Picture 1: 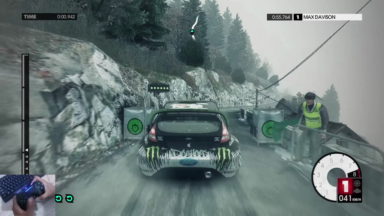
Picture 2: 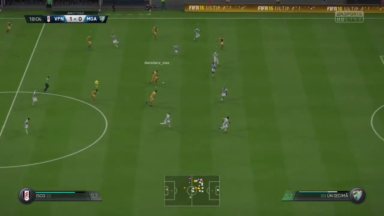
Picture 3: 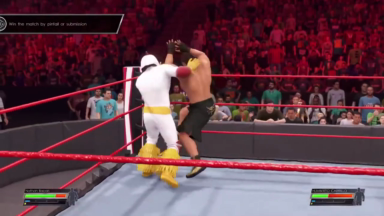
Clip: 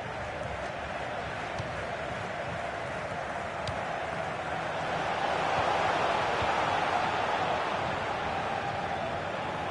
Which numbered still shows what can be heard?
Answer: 2